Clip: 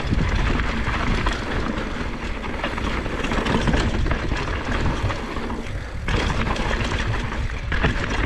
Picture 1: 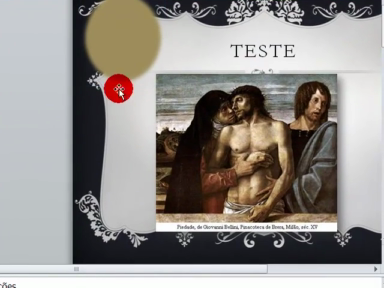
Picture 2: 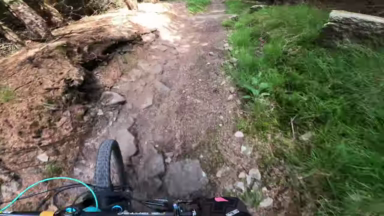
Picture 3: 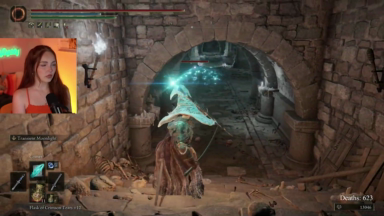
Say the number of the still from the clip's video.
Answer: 2